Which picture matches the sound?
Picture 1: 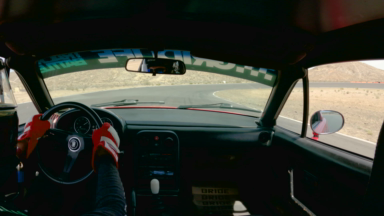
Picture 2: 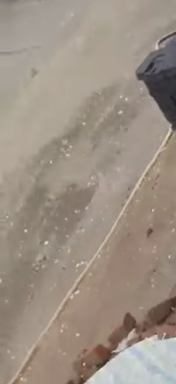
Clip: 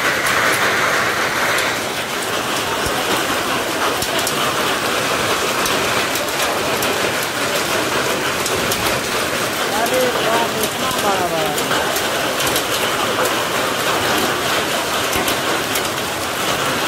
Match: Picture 2